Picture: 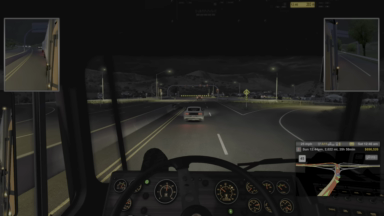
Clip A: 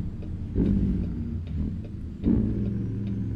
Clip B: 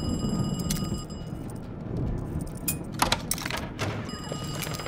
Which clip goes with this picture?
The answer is A